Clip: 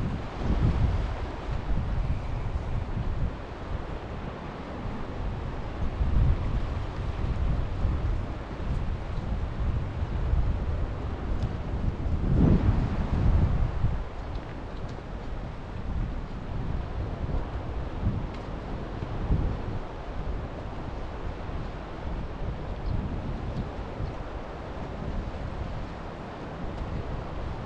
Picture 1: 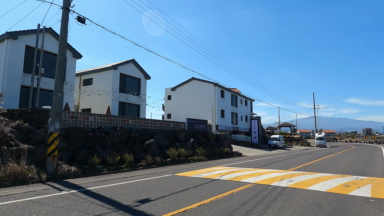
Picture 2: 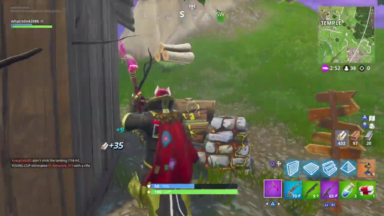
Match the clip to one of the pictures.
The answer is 1